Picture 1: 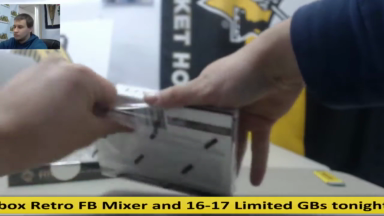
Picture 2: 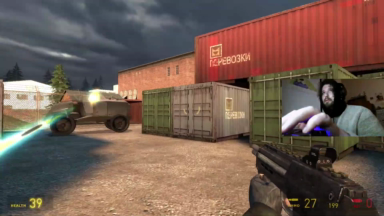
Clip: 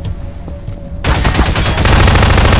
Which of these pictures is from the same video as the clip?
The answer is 2